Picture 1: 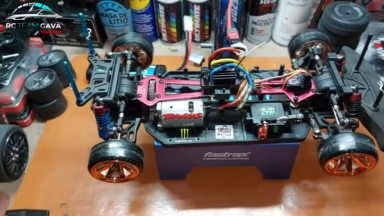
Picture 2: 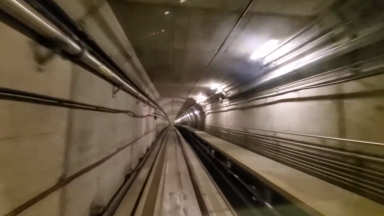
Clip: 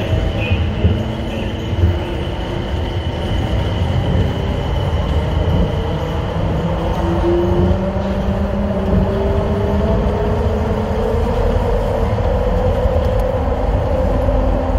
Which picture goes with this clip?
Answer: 2